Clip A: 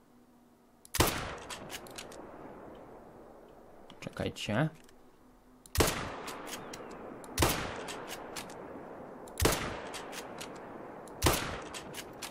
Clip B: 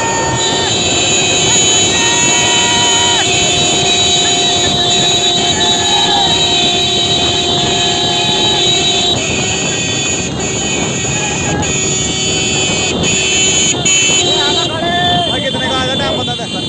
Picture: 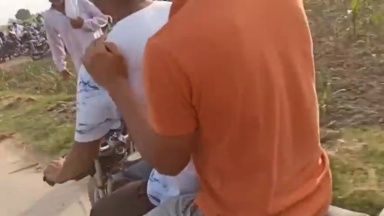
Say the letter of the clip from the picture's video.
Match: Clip B